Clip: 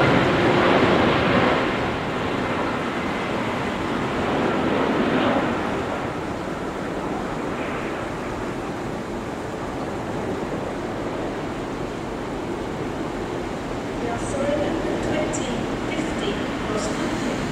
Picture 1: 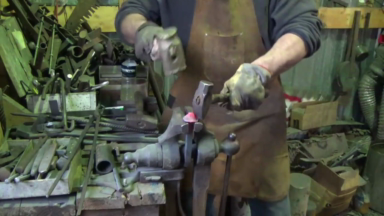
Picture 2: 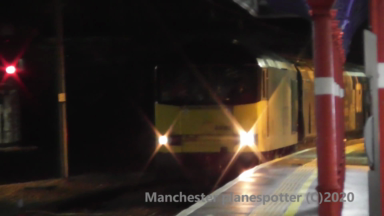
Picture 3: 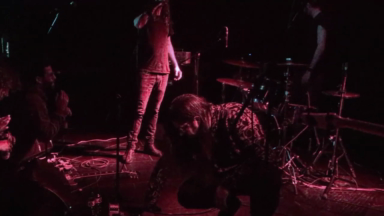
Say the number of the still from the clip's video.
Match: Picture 2